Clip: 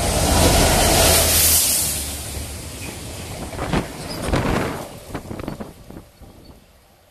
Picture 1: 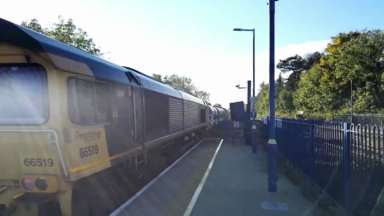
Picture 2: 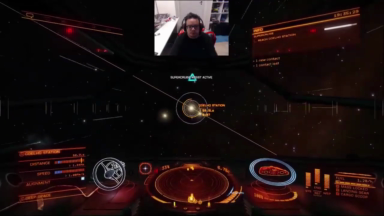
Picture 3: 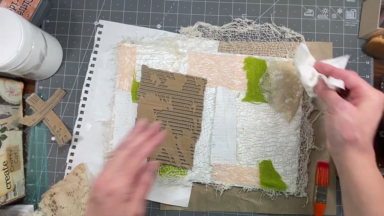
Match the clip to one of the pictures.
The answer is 1